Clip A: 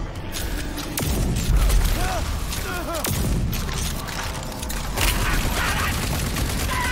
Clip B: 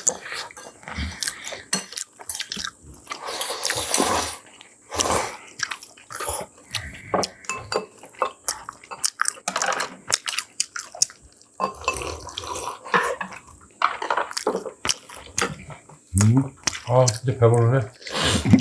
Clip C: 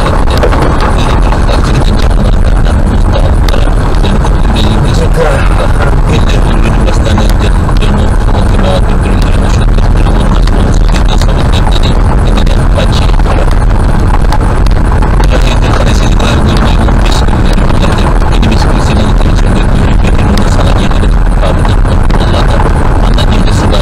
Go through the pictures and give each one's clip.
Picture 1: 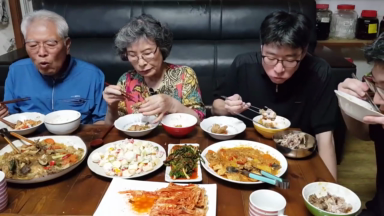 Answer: B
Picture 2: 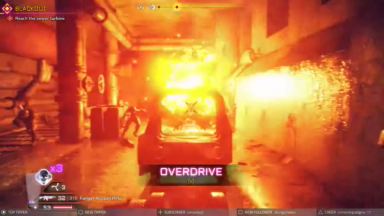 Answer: A